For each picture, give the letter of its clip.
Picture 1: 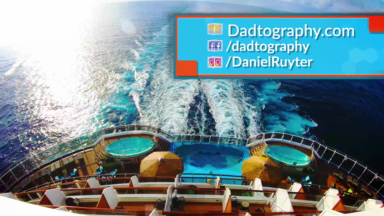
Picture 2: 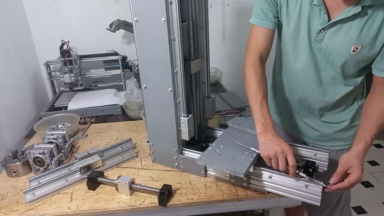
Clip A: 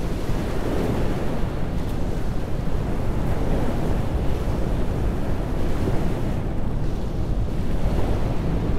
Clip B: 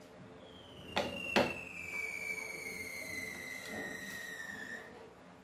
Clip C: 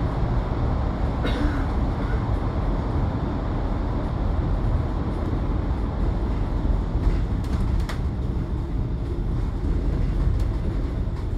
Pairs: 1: A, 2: B